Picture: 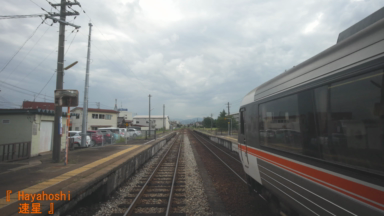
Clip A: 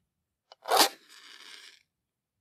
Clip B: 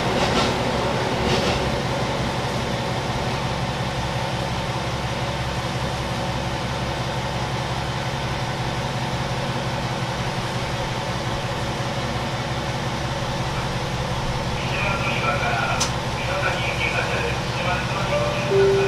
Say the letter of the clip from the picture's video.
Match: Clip B